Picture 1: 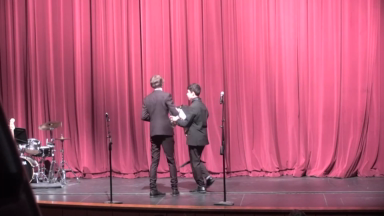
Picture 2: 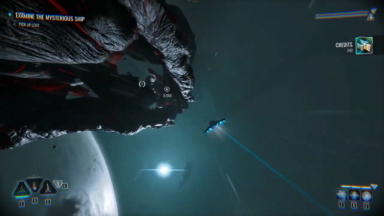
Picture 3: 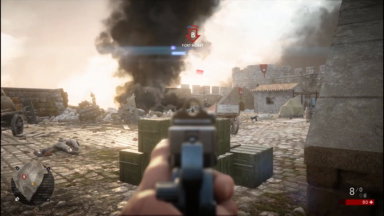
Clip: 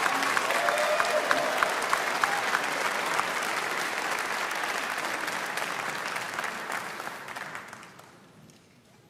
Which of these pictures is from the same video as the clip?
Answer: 1